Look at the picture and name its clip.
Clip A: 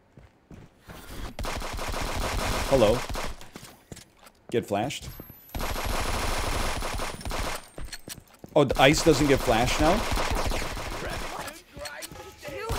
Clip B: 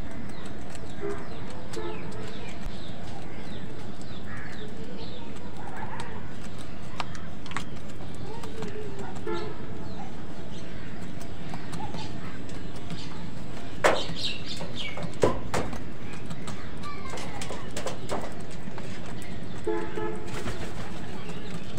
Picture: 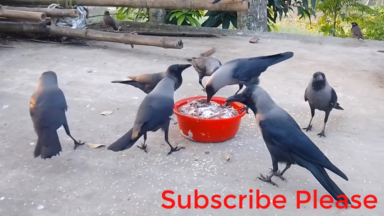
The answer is B